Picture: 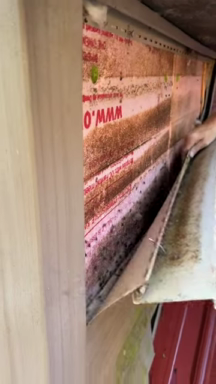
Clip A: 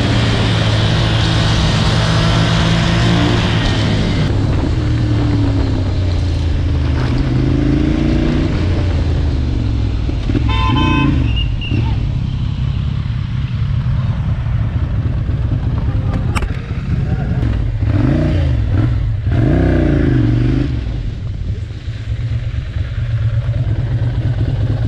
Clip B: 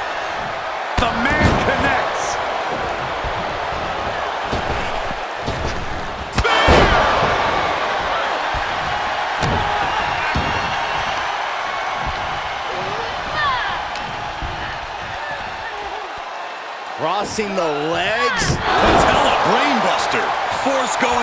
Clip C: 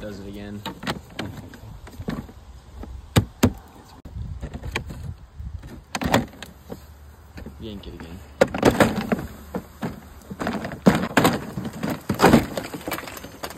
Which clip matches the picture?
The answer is C